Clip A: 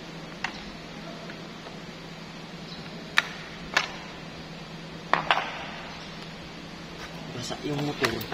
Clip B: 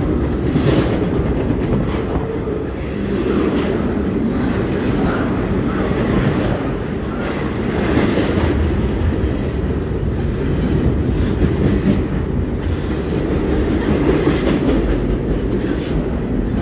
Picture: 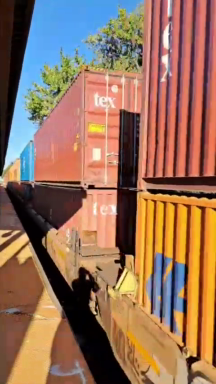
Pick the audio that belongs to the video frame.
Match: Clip B